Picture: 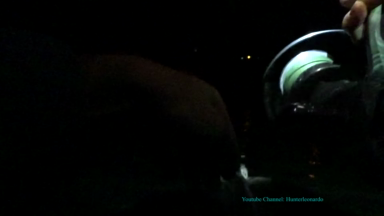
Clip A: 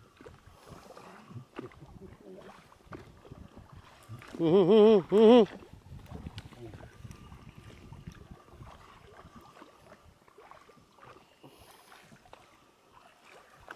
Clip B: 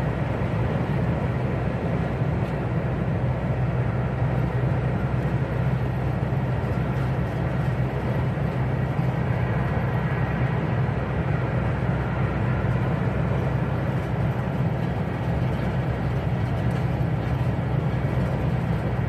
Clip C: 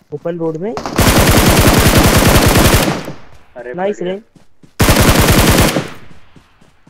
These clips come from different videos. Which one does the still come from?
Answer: A